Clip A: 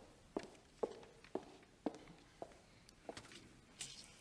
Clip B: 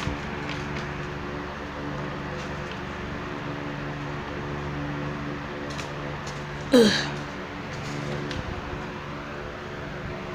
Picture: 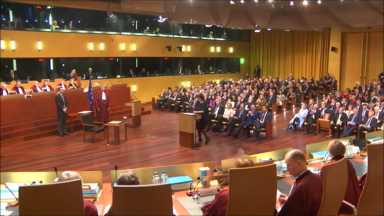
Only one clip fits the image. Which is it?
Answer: A